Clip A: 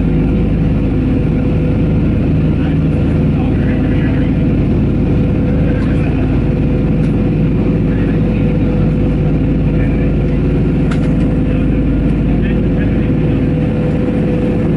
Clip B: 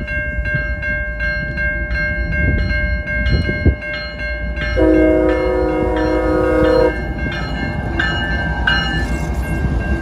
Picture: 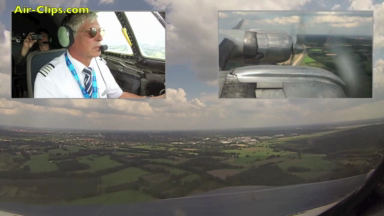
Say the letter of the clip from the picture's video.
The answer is A